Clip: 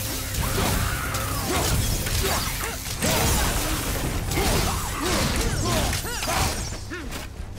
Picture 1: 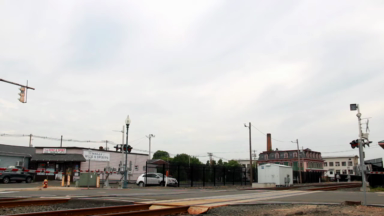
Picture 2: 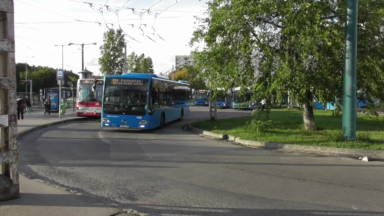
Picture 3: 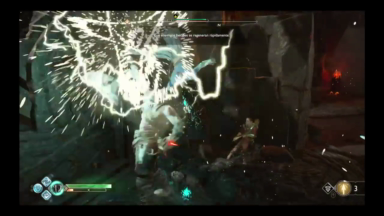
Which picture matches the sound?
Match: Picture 3